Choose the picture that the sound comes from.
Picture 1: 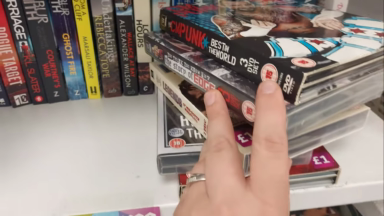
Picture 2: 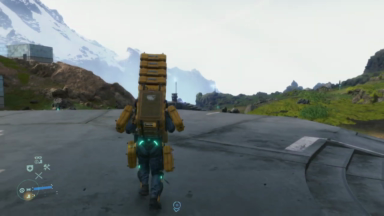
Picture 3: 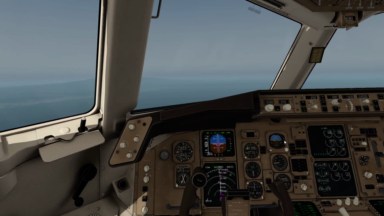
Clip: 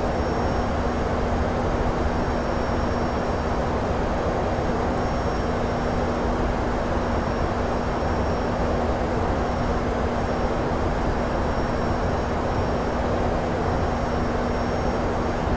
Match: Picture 3